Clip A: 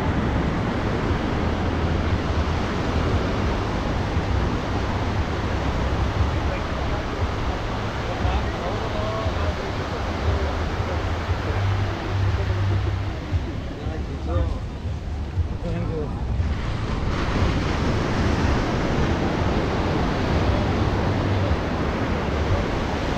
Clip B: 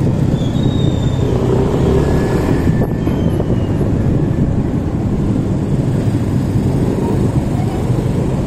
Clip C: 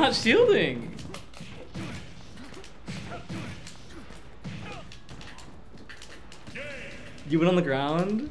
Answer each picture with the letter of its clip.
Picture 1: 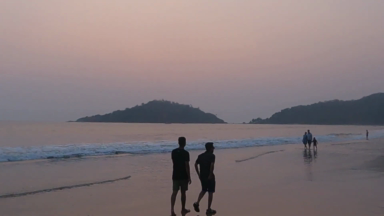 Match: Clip A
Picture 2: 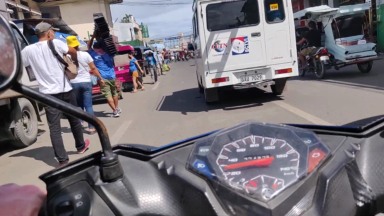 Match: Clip B